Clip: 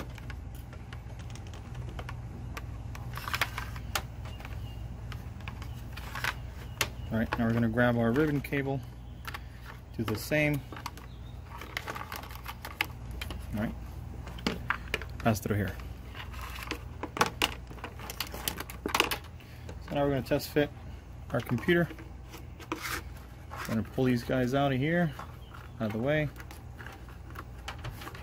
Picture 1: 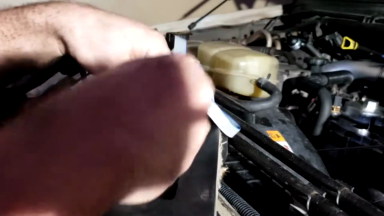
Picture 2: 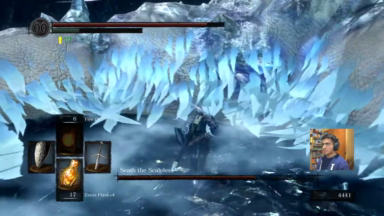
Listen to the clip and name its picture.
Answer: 1